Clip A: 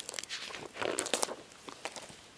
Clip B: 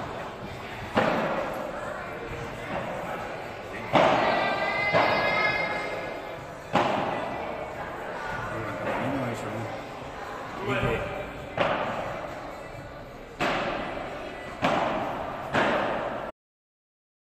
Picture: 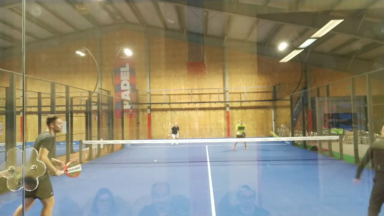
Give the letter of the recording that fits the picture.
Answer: B